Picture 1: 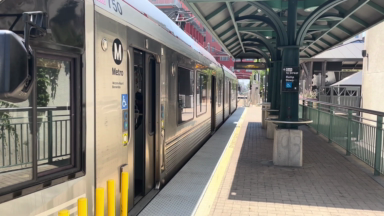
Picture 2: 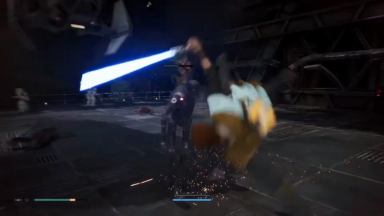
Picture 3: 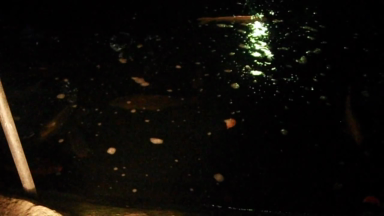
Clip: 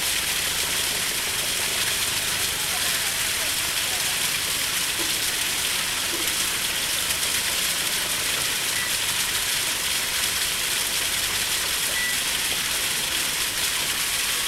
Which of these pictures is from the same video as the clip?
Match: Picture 3